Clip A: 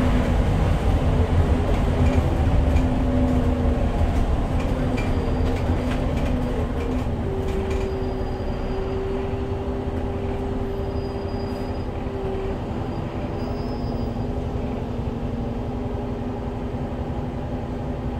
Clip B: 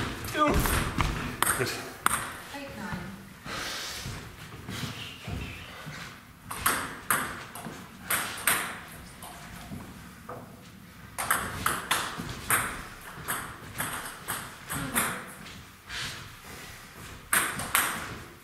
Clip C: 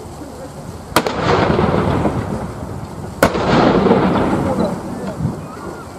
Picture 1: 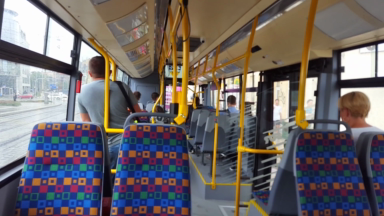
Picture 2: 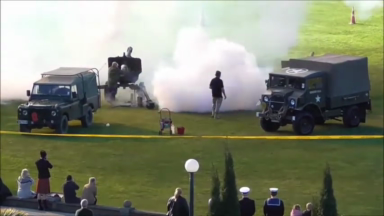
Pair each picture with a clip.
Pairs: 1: A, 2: C